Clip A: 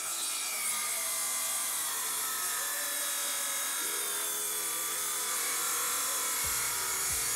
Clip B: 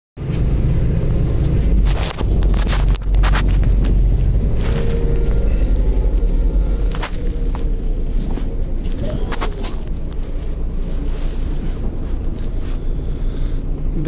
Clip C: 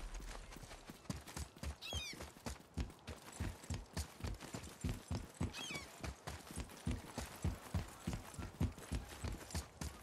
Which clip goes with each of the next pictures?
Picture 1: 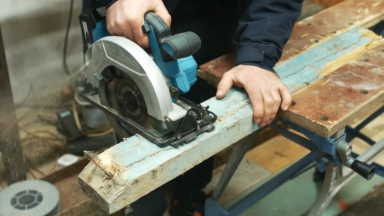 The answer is A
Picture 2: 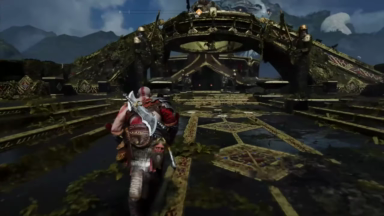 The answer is C